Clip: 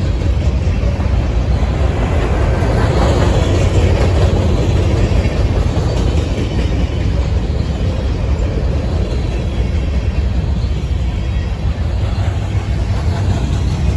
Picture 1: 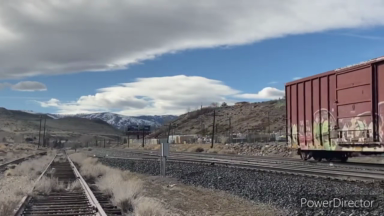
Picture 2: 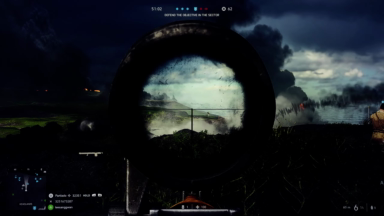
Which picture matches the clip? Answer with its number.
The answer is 1